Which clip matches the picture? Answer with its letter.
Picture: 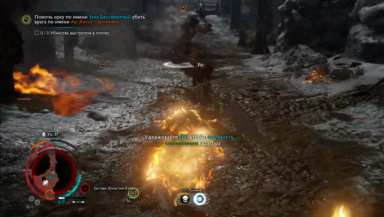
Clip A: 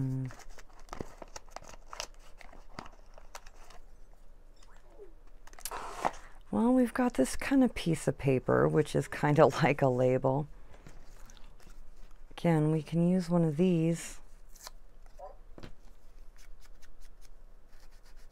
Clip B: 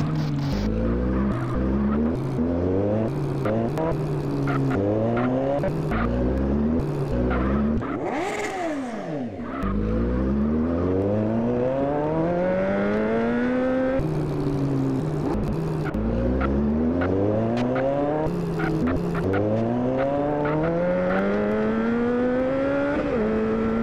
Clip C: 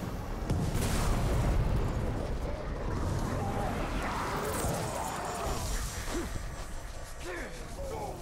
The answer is C